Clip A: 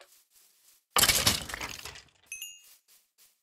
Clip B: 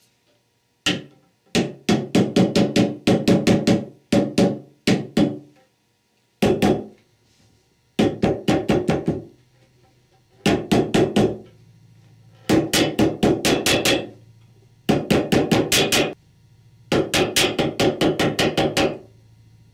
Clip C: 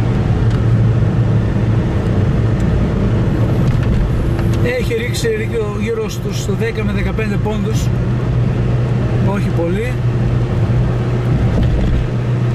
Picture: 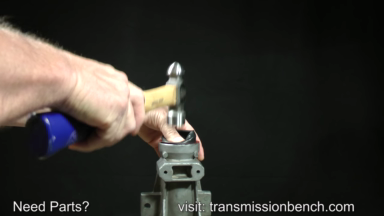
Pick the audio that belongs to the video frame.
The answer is B